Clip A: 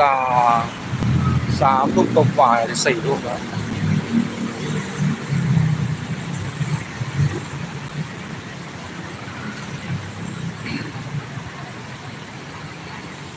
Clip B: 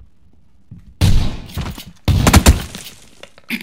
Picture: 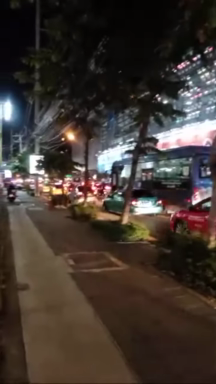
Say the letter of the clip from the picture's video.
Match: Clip A